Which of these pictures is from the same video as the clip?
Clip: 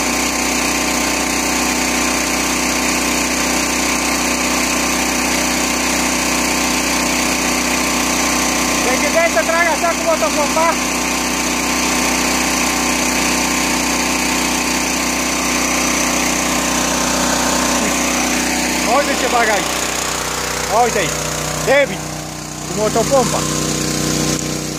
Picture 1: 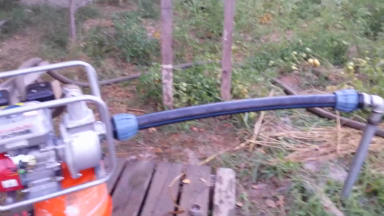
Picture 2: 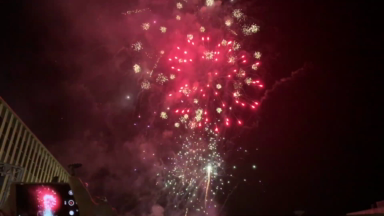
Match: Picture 1